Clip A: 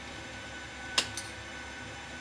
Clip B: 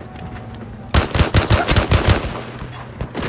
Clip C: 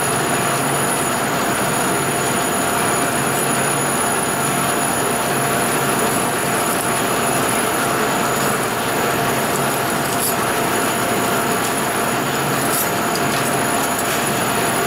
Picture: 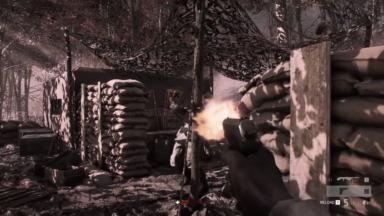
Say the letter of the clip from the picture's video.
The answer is B